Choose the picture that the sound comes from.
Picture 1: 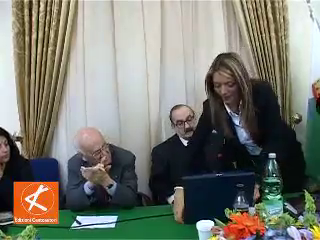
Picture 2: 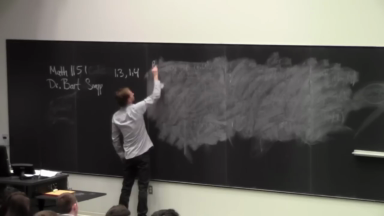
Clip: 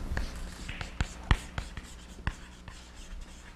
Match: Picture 2